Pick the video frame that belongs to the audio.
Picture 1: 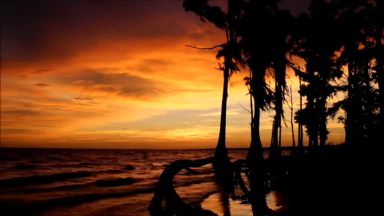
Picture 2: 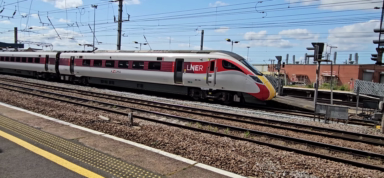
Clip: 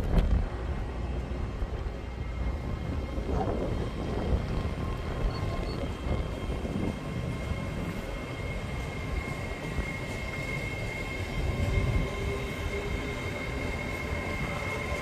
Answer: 2